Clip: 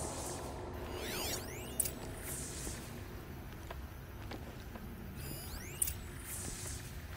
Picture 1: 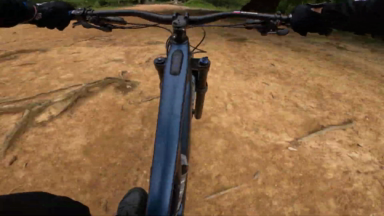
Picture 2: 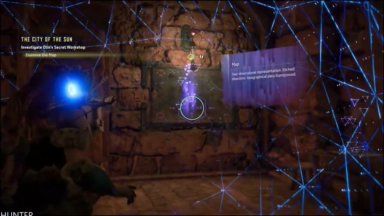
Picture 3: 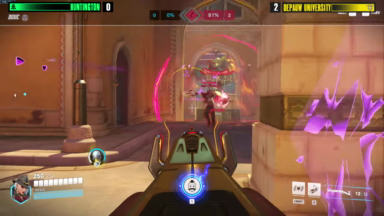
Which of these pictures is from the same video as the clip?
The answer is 2